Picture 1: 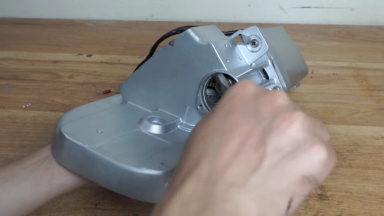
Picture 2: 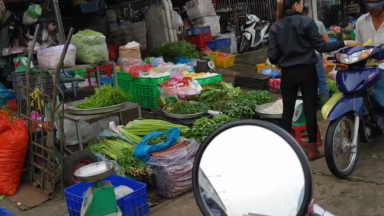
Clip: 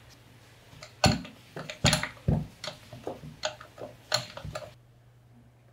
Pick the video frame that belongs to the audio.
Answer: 1